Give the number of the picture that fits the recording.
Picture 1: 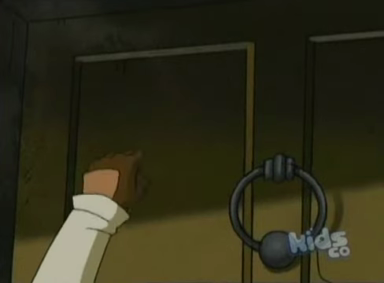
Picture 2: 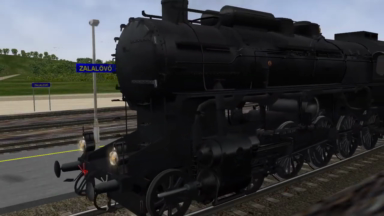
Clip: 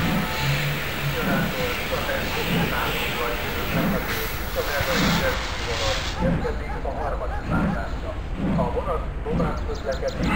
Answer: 2